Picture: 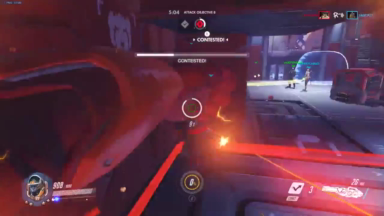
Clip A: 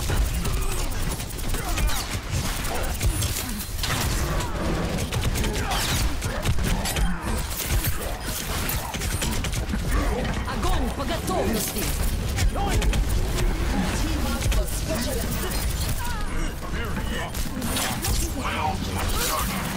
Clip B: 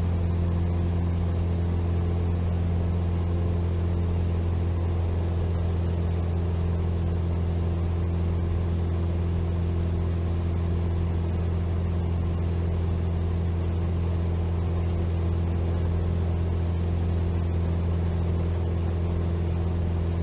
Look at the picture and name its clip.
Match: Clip A